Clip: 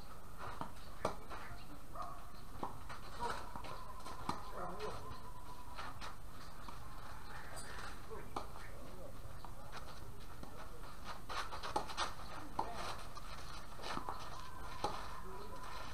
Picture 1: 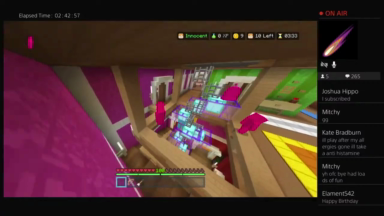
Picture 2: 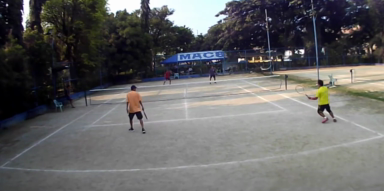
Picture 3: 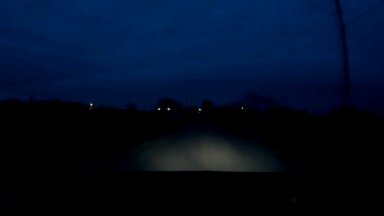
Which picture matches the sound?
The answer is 2